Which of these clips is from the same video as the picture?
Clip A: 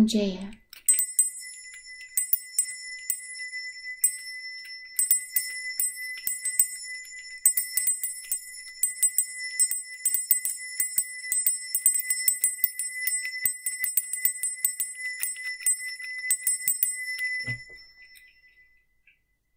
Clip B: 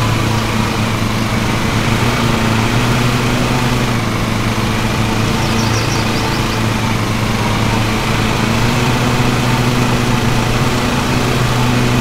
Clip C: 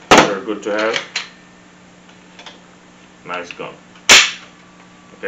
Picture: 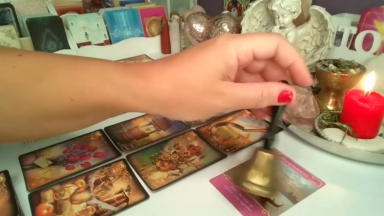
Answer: A